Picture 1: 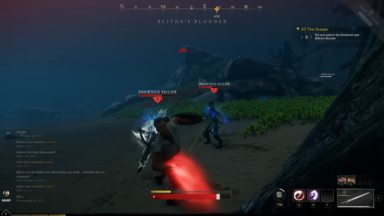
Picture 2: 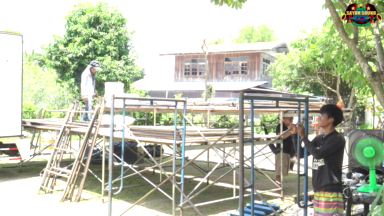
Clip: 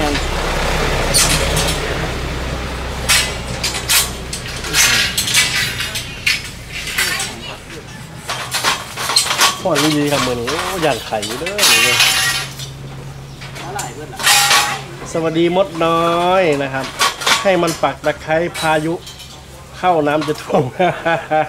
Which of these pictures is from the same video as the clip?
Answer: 2